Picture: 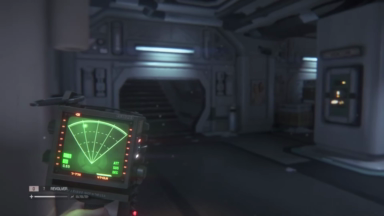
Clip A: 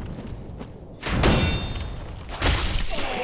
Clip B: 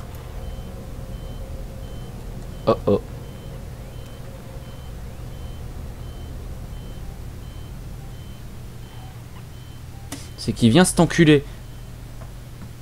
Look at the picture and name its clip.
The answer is B